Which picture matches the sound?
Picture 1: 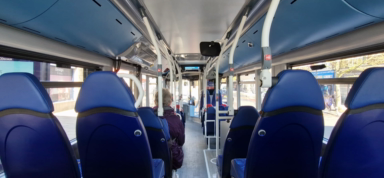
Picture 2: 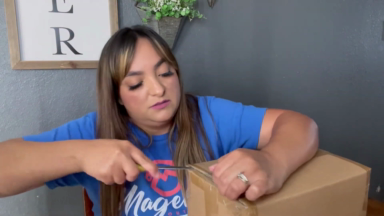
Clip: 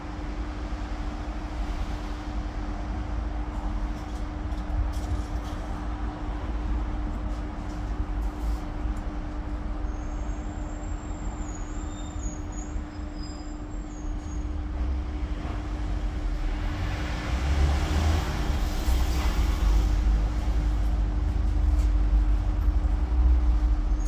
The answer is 1